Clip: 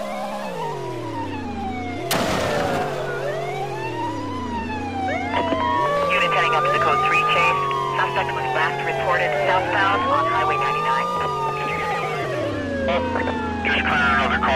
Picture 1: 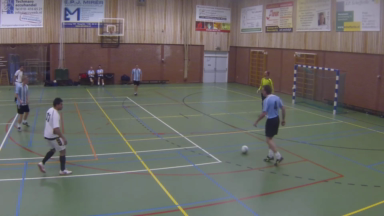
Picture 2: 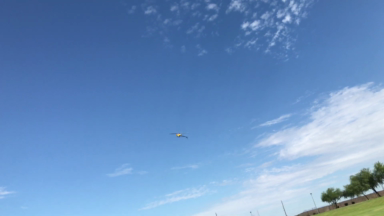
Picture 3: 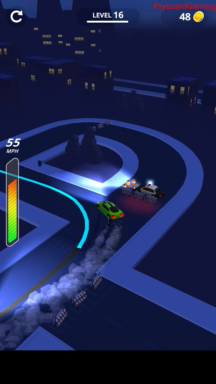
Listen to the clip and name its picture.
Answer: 3